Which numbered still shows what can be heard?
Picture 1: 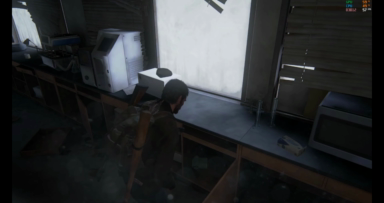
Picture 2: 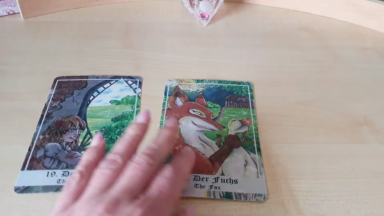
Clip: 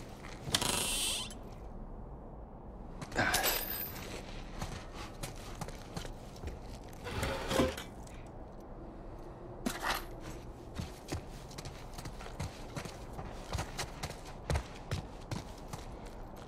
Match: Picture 1